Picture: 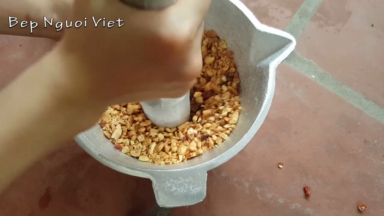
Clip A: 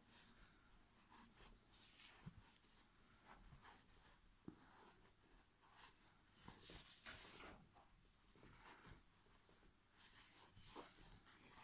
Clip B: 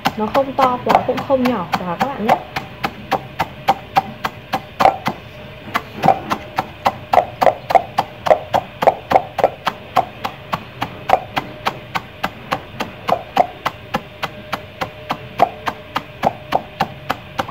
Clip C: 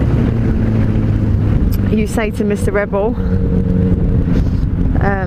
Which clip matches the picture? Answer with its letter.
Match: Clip B